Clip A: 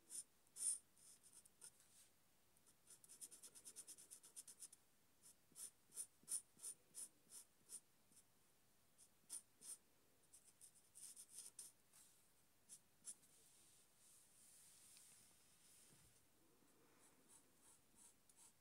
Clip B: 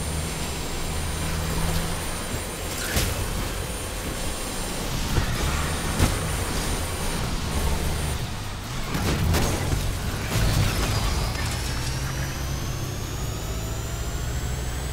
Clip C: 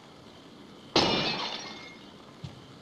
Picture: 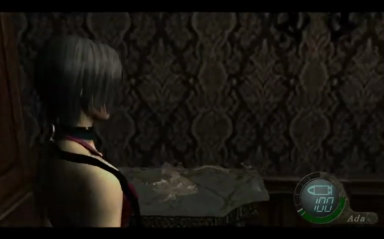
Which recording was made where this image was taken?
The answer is C